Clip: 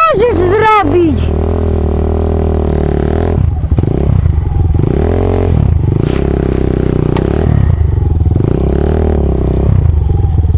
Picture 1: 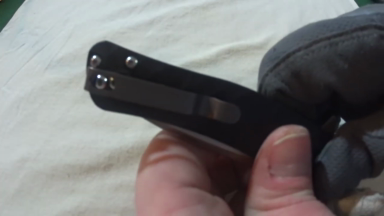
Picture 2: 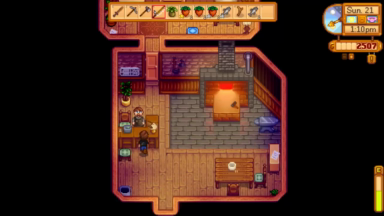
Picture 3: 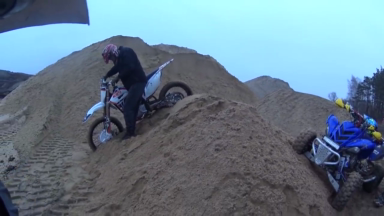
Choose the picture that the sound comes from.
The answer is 3